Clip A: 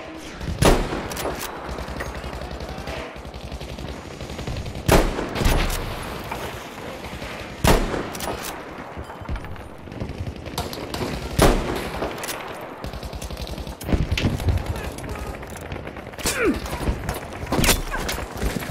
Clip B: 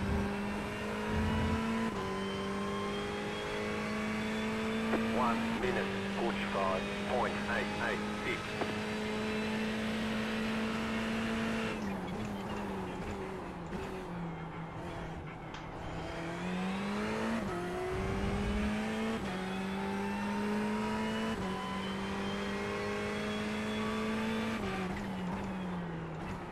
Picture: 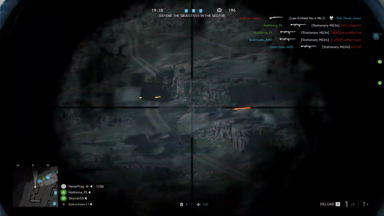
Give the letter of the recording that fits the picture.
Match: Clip A